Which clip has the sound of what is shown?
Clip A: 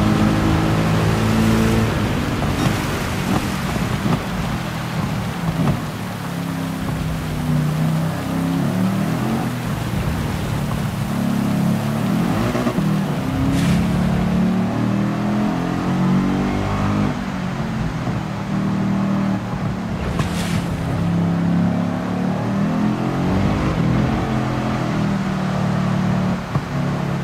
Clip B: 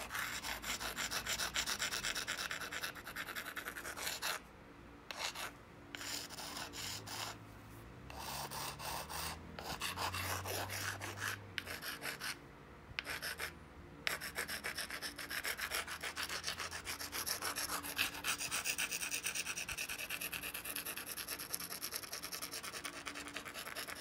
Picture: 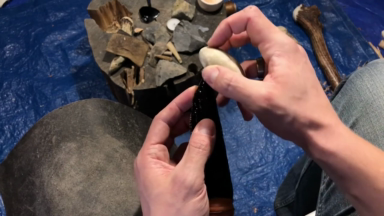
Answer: B